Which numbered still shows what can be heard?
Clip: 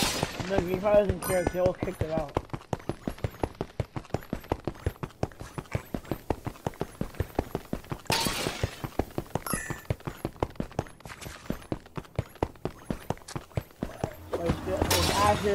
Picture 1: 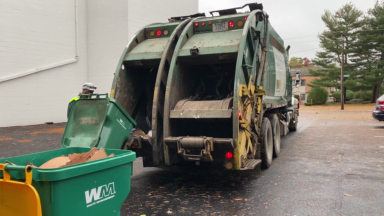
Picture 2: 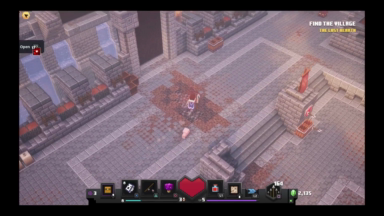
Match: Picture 2